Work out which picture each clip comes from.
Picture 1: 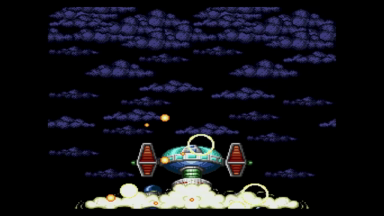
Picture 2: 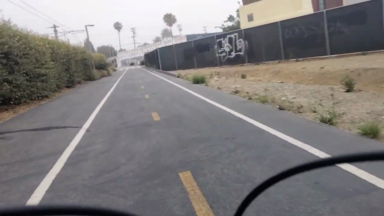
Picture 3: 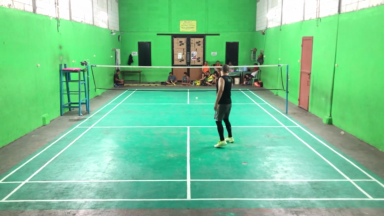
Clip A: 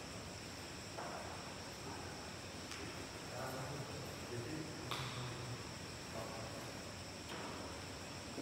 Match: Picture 3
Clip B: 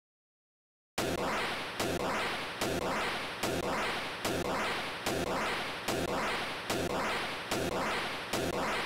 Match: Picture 1